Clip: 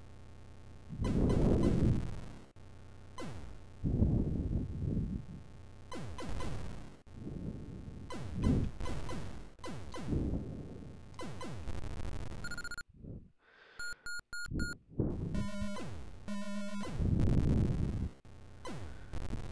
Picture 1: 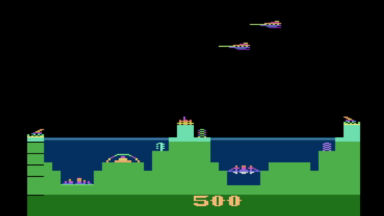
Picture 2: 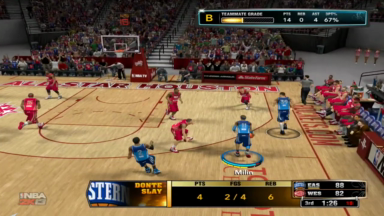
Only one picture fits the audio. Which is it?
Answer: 1